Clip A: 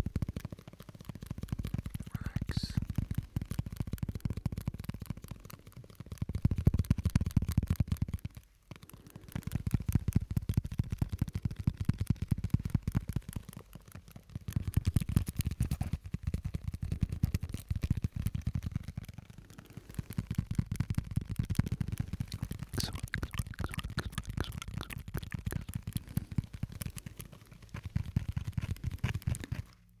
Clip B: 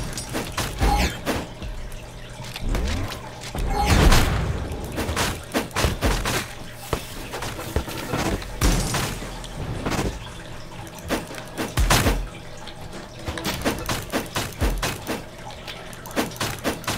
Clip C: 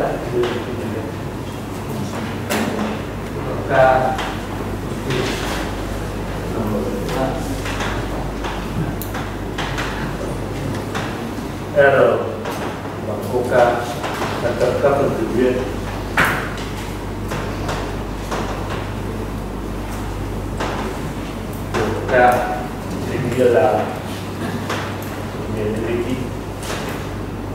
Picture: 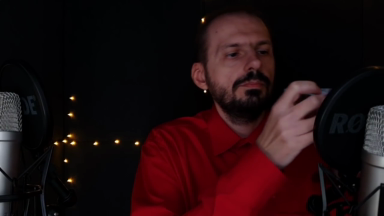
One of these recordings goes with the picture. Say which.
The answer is A